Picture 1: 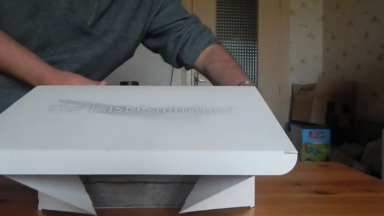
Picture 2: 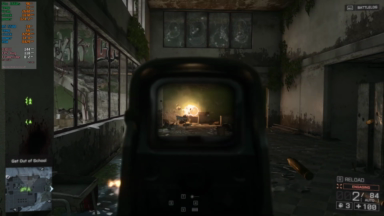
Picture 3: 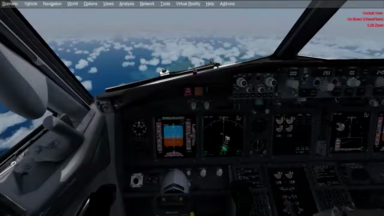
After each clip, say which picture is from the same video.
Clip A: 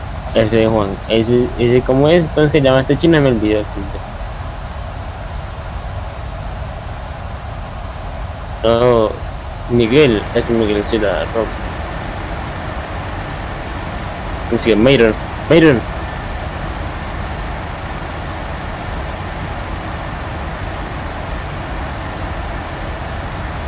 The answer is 3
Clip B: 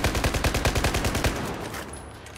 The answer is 2